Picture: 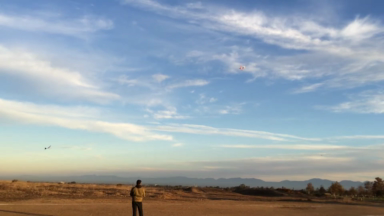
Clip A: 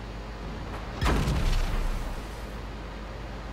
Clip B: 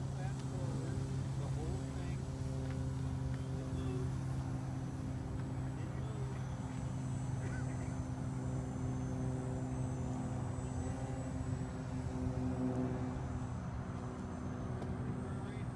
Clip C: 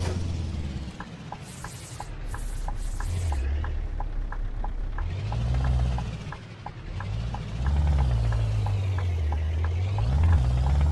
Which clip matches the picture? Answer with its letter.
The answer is B